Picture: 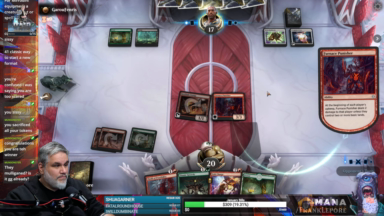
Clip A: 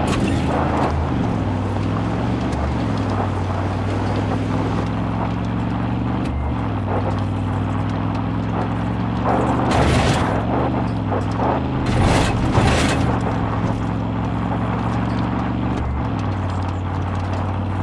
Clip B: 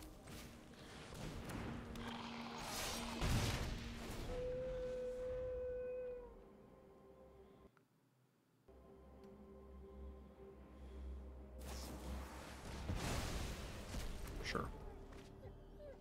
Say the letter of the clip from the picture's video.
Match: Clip B